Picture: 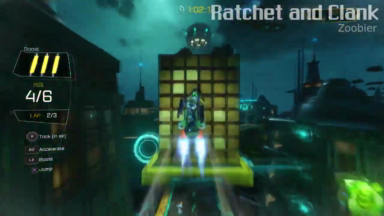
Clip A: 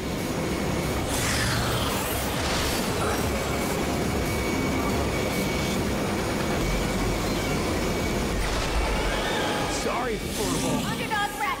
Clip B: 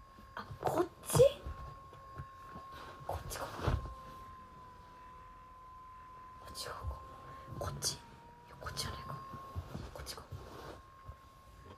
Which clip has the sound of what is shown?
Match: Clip A